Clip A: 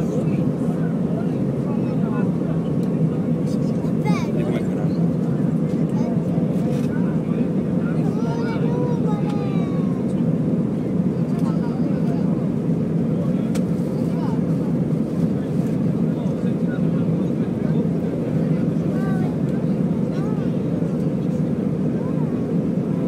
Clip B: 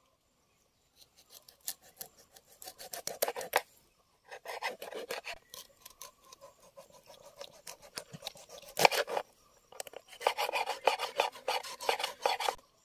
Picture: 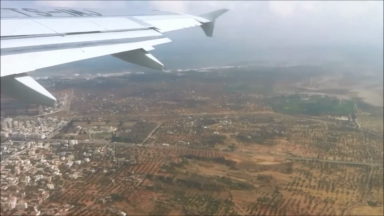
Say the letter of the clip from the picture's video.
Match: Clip A